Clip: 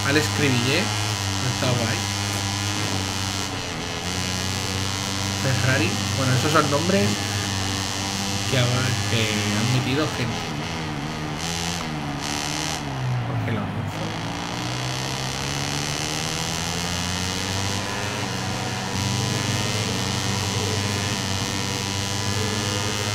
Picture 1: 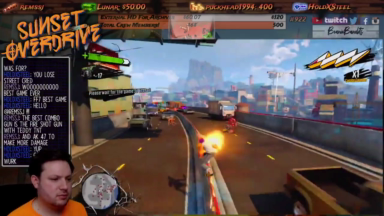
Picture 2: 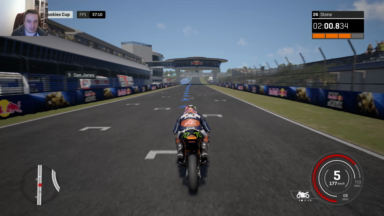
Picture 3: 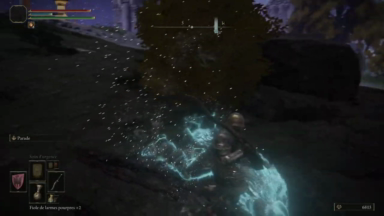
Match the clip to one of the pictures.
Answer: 2